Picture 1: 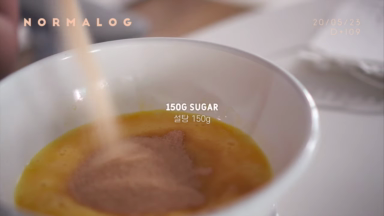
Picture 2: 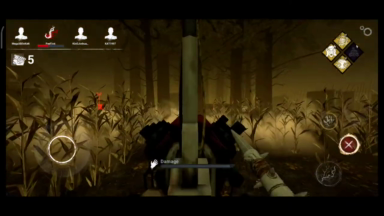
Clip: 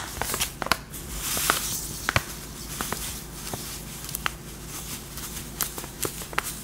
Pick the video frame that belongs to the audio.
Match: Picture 1